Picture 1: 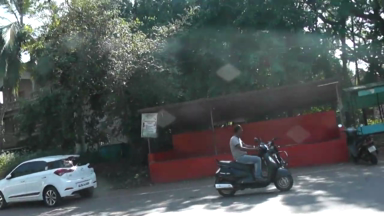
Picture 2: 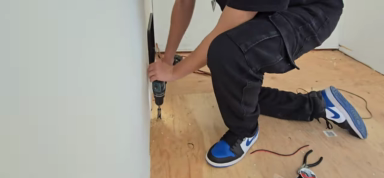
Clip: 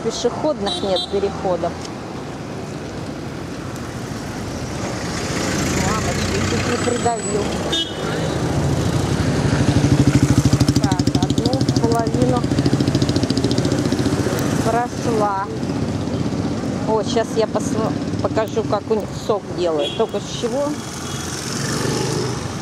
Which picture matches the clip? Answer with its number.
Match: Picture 1